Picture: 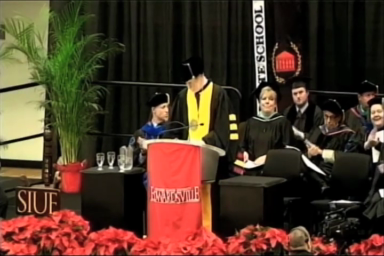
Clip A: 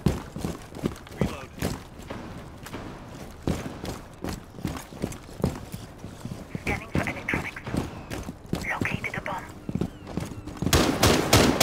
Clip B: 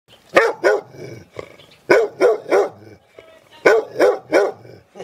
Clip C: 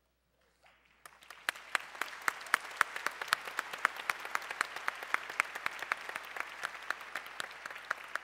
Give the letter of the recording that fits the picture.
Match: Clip C